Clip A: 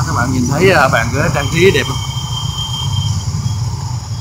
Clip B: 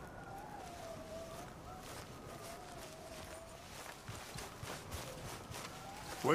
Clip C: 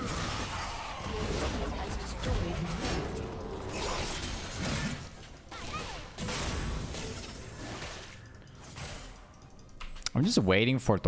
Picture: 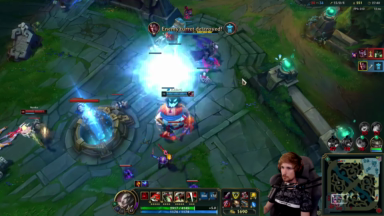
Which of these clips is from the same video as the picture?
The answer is C